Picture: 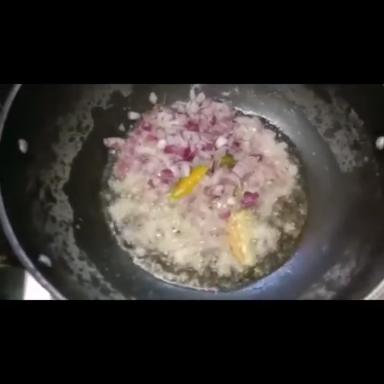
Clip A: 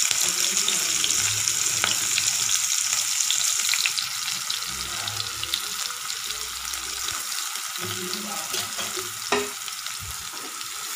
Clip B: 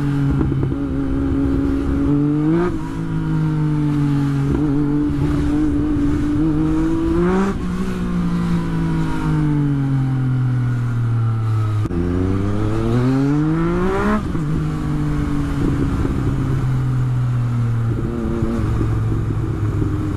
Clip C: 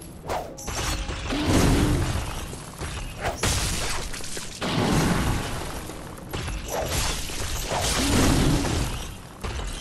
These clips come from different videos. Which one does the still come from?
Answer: A